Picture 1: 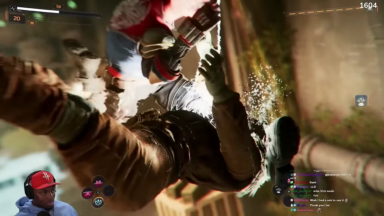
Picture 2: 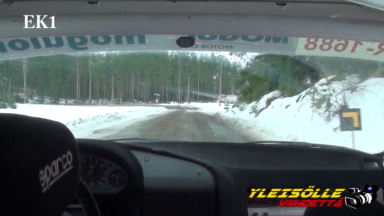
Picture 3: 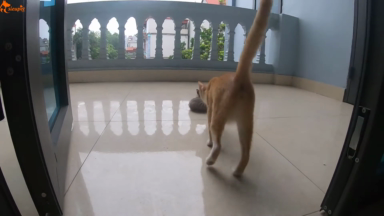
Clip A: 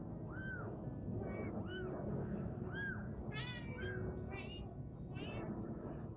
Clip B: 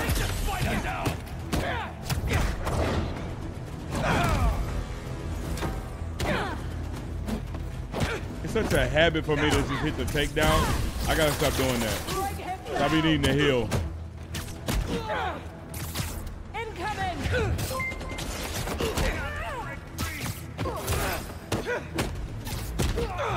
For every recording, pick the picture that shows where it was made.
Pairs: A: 3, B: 1